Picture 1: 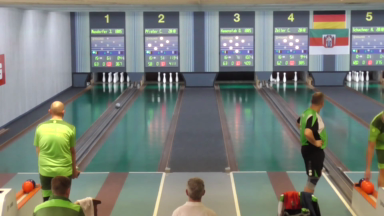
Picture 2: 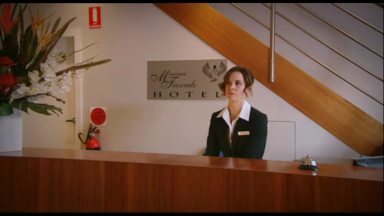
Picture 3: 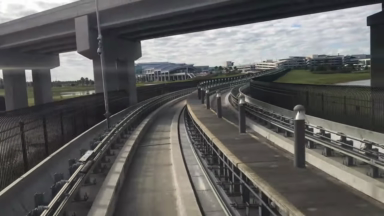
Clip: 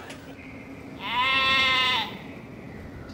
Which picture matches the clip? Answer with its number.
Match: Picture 2